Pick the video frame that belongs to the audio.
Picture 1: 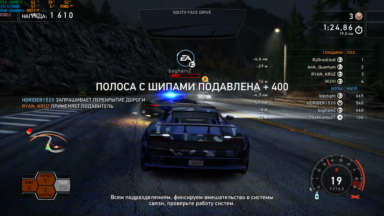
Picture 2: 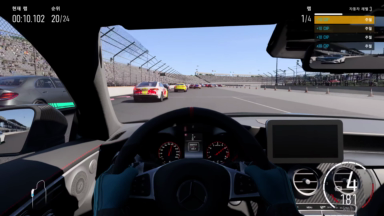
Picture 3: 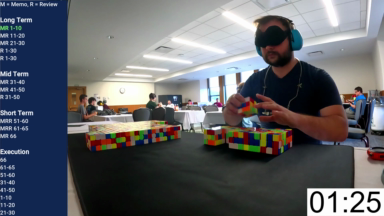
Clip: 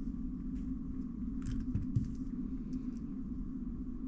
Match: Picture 3